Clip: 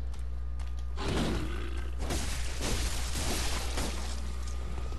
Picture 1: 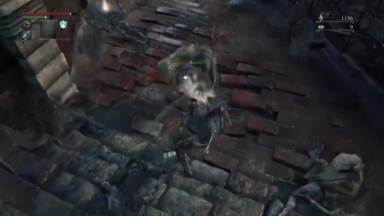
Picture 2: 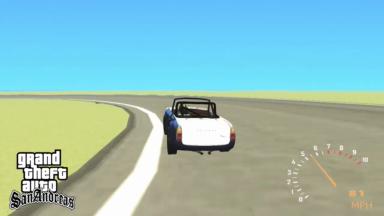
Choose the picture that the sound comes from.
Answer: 1